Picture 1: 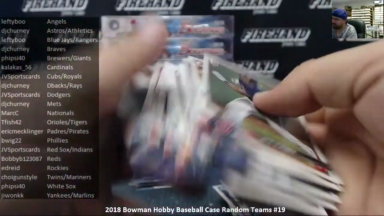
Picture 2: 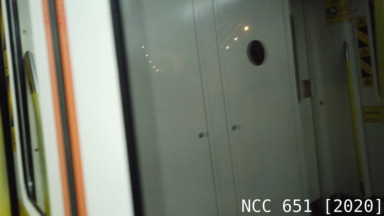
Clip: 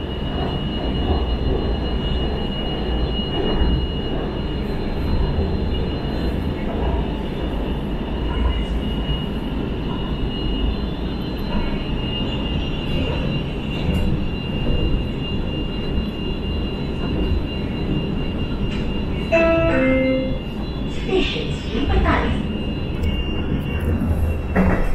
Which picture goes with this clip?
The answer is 2